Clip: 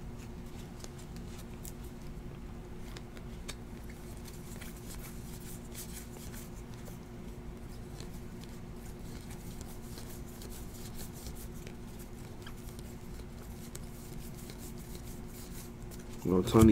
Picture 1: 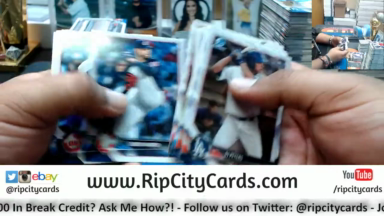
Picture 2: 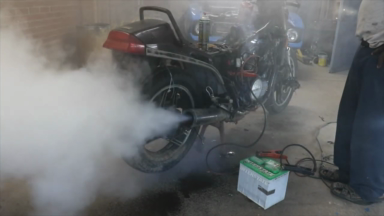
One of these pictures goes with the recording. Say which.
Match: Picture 1